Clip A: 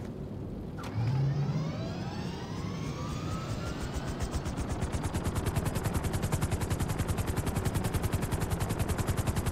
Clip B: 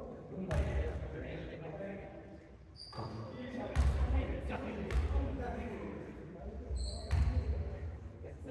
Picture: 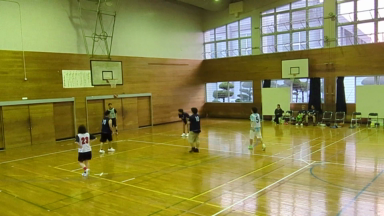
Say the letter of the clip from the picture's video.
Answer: B